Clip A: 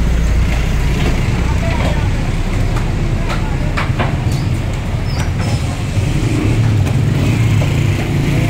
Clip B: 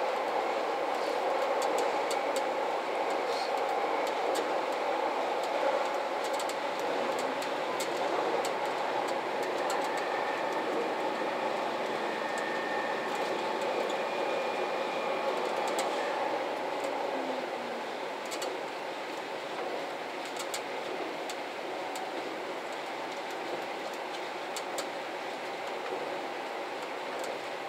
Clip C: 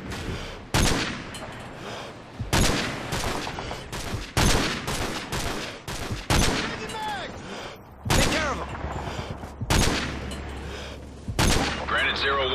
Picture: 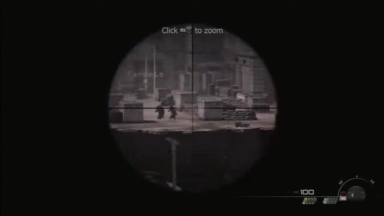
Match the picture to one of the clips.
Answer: C